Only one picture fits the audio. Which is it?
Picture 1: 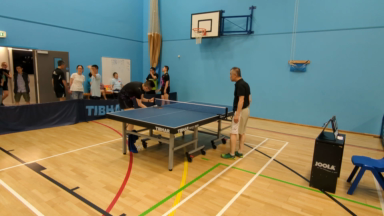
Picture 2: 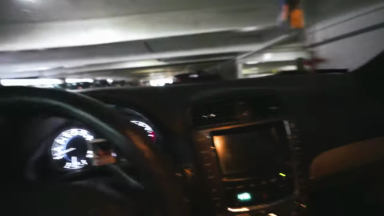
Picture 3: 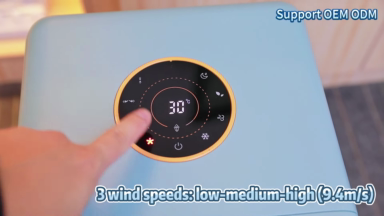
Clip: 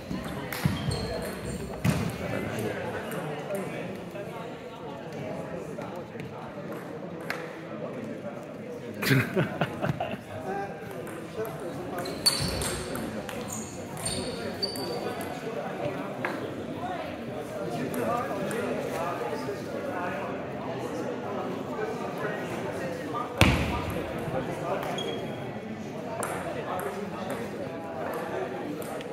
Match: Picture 1